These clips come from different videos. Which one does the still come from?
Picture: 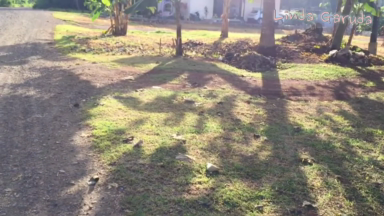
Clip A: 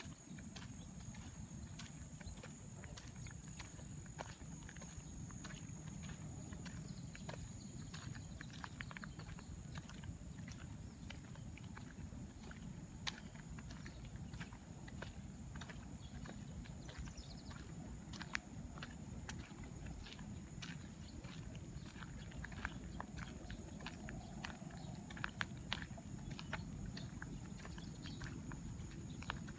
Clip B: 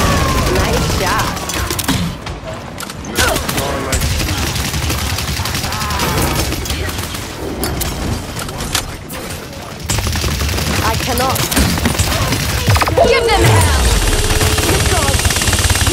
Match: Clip A